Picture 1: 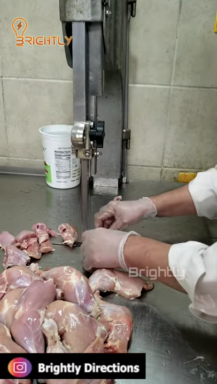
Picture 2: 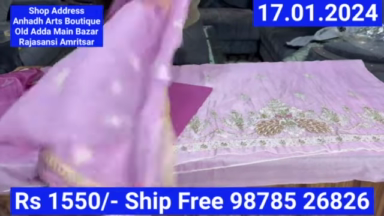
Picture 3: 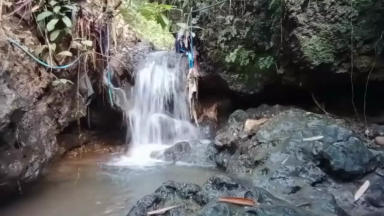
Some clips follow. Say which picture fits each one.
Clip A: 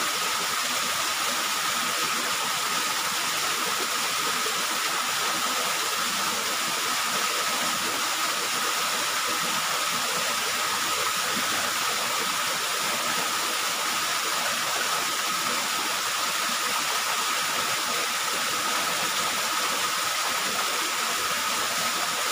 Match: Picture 3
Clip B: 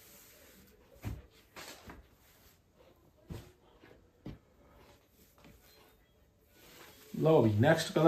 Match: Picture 2